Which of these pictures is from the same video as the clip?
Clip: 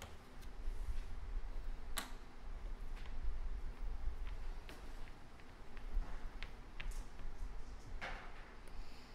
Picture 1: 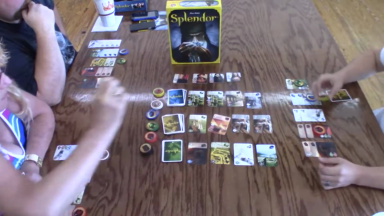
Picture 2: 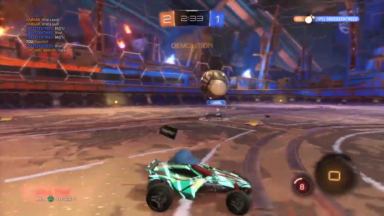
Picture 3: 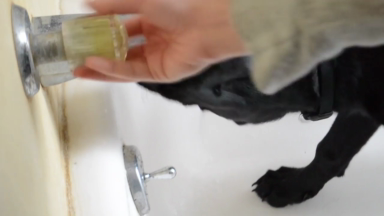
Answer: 1